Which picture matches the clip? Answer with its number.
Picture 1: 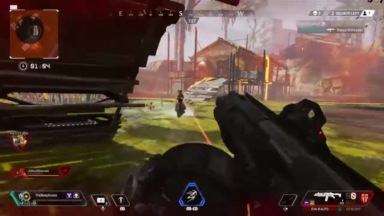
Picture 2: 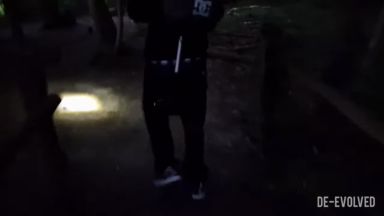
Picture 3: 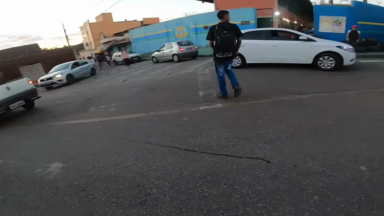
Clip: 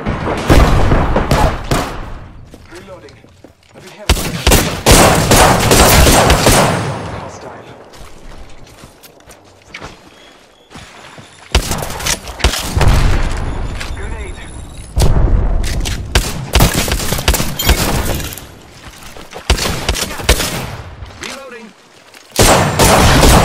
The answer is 1